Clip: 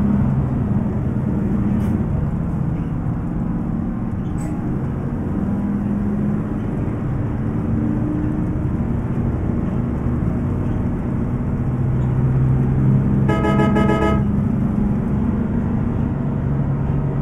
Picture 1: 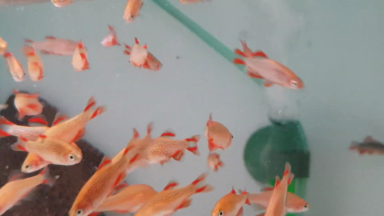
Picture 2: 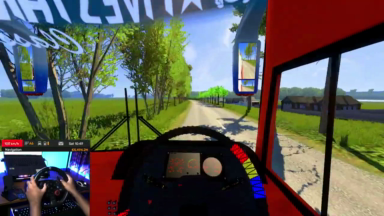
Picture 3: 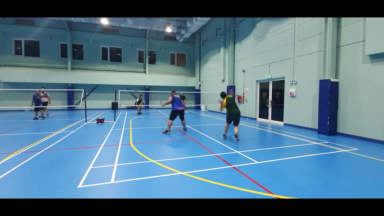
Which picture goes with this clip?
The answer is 2